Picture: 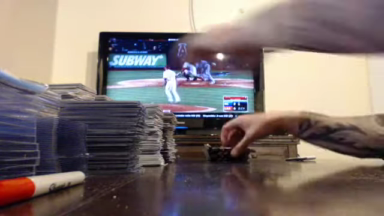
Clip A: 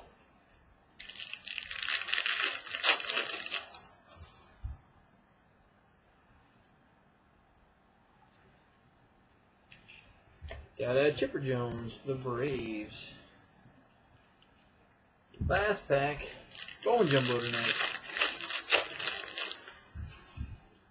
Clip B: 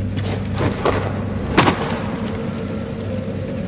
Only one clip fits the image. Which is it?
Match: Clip A